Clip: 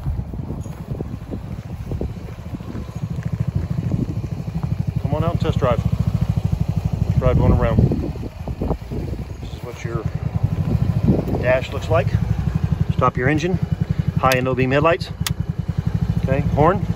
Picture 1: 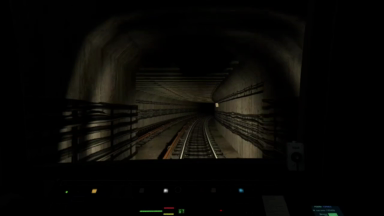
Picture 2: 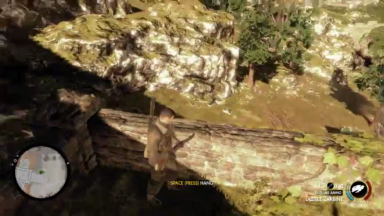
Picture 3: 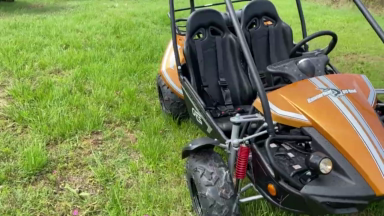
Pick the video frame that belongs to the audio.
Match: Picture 3